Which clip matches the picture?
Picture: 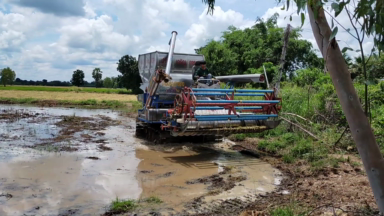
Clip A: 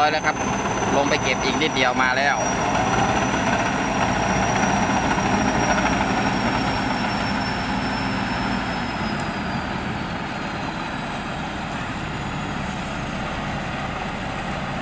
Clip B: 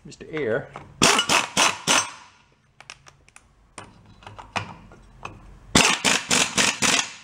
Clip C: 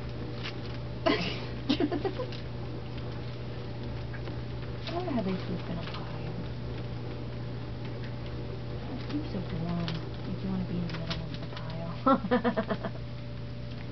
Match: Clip A